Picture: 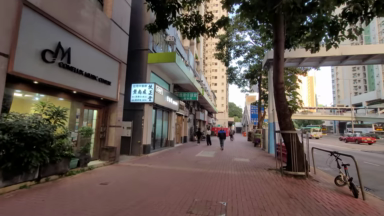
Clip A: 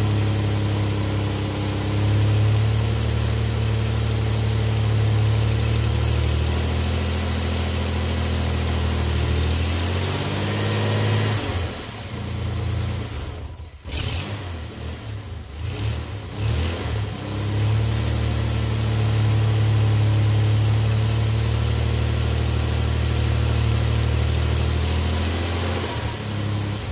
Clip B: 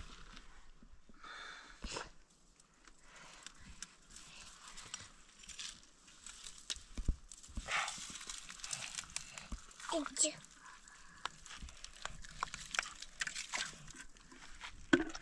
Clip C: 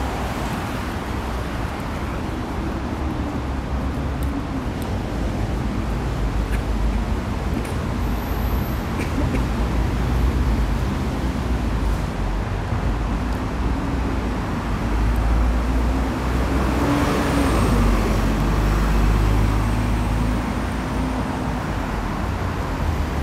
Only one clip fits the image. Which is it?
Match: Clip C